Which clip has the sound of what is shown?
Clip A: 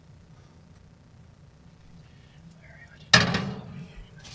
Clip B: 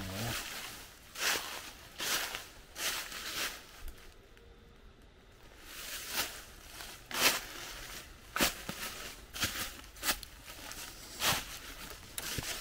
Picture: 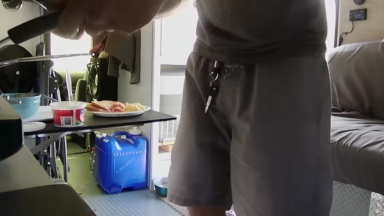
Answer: A